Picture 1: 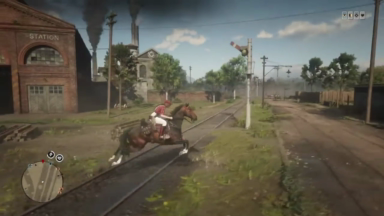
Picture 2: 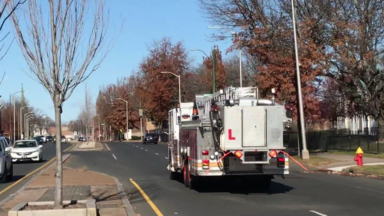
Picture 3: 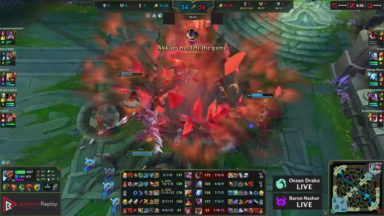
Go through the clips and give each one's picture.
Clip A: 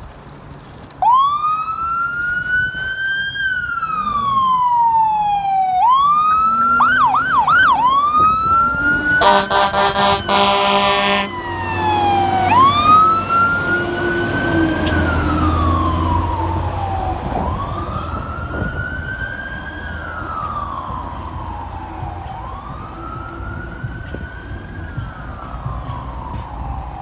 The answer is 2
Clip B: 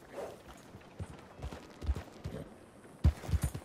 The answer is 1